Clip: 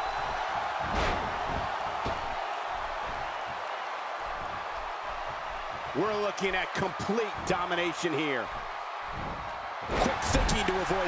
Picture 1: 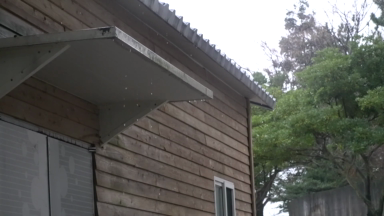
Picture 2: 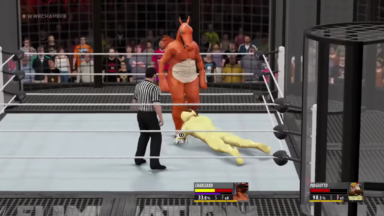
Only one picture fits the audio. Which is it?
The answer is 2